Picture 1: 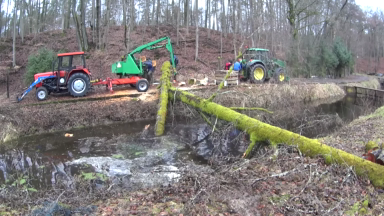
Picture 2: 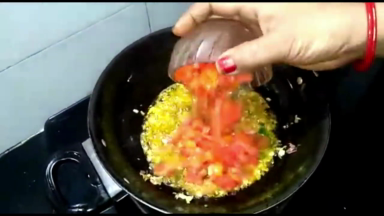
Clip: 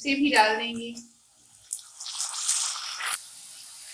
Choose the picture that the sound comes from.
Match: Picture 2